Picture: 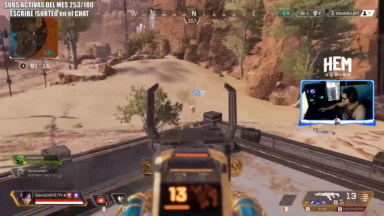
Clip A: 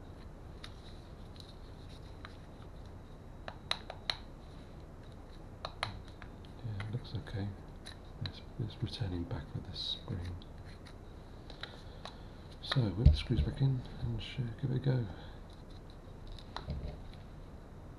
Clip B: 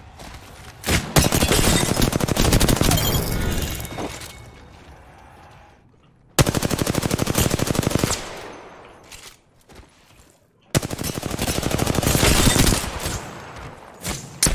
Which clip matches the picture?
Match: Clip B